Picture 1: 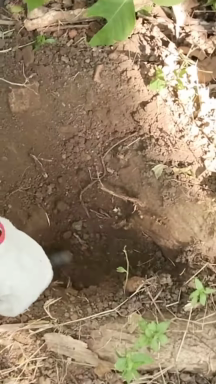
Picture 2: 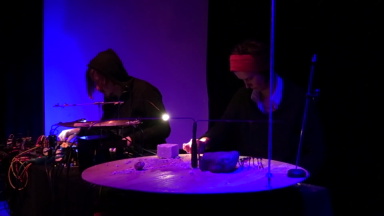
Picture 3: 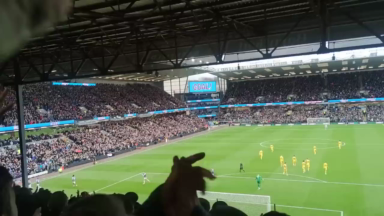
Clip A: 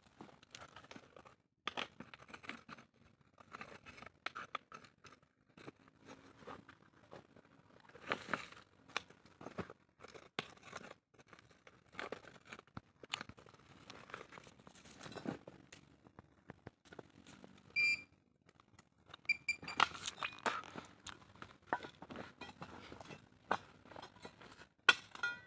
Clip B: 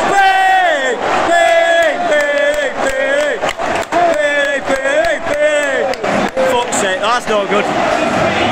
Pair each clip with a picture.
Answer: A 1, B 3